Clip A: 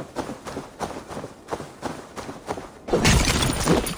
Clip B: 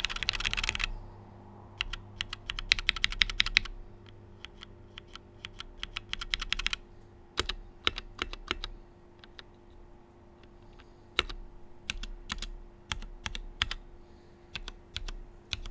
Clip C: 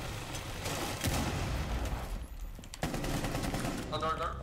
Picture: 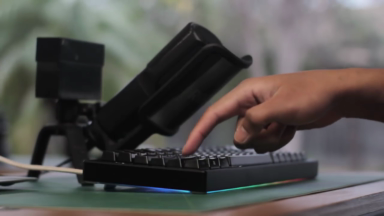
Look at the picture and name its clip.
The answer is B